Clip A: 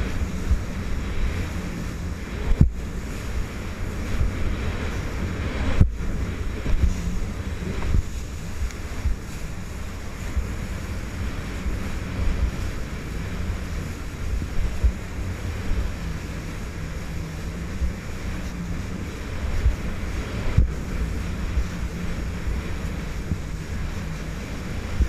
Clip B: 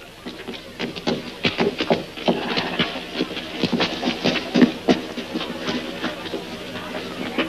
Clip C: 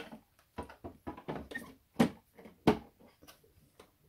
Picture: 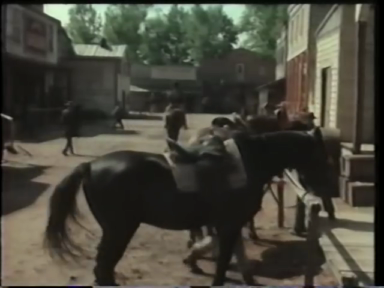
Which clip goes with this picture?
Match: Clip B